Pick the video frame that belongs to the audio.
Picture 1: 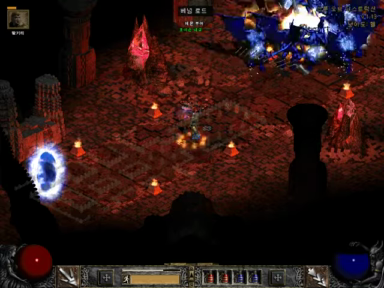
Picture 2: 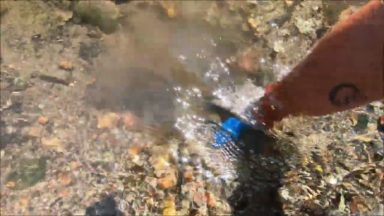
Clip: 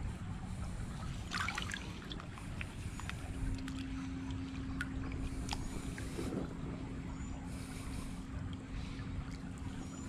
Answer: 2